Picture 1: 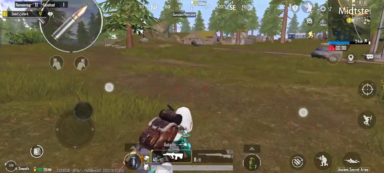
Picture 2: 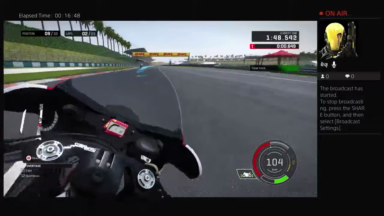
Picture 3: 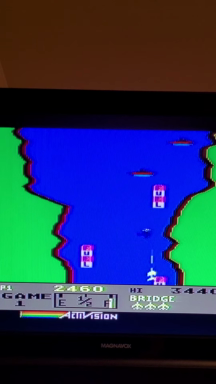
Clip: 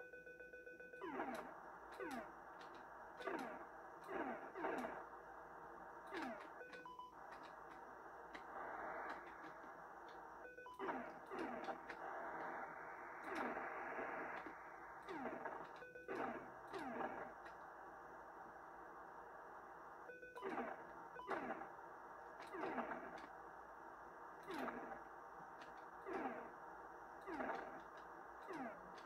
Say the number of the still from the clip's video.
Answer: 3